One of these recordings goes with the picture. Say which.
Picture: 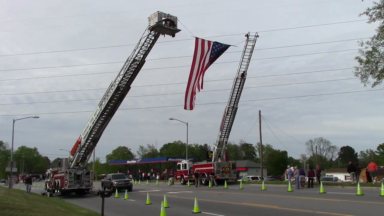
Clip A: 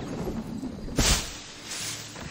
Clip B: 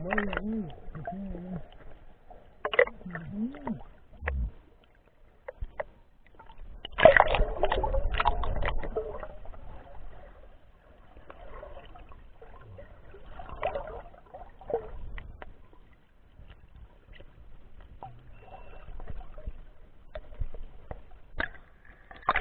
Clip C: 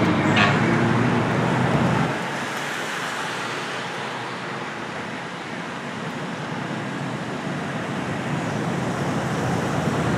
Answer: C